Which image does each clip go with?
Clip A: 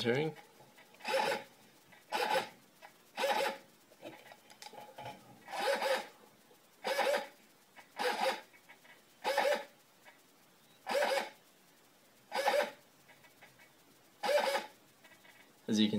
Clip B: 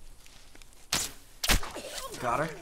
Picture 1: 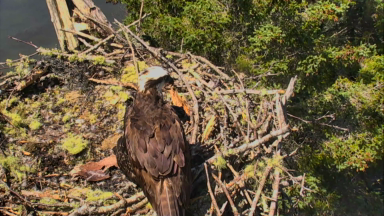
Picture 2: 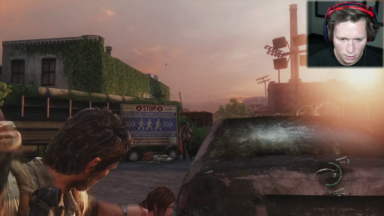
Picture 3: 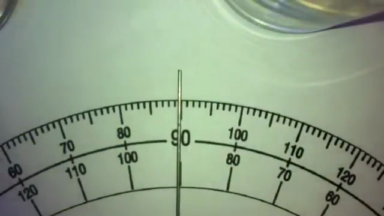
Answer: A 3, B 2